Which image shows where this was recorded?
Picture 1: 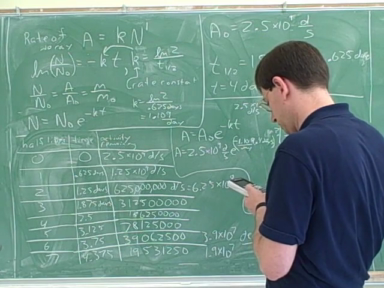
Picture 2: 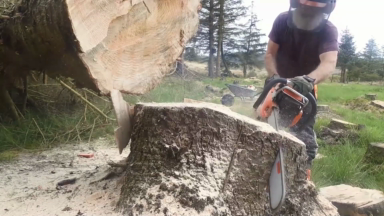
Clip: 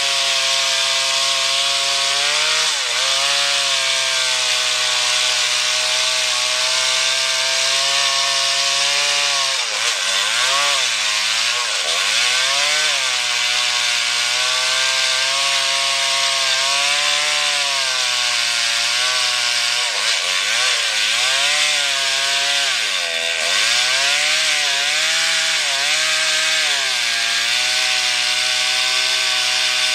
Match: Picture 2